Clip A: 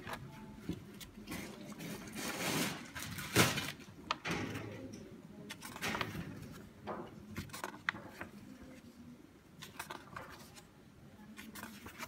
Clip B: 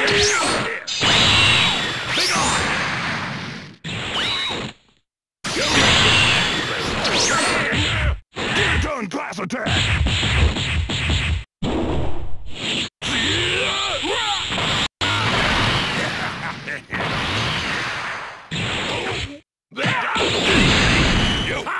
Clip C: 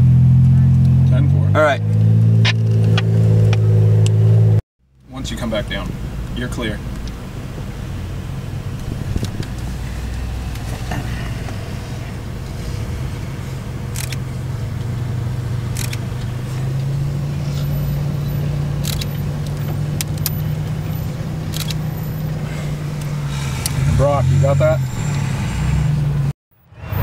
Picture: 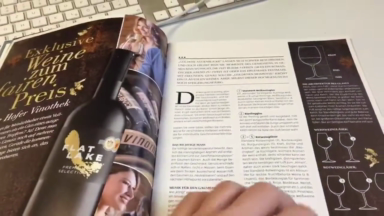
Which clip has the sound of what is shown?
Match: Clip A